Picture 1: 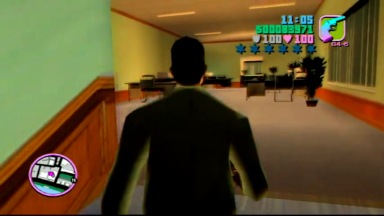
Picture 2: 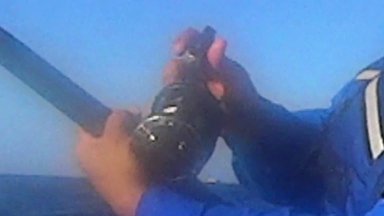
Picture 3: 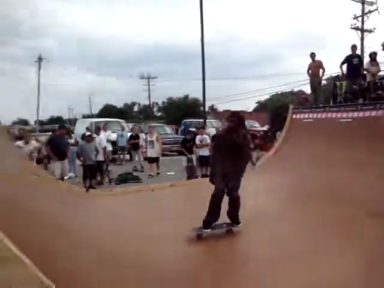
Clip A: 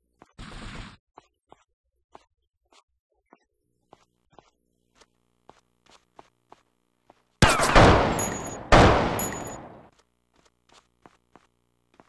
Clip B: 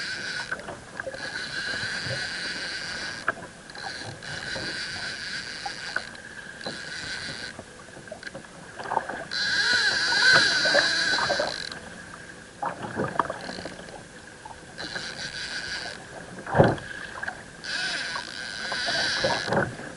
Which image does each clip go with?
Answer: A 1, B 2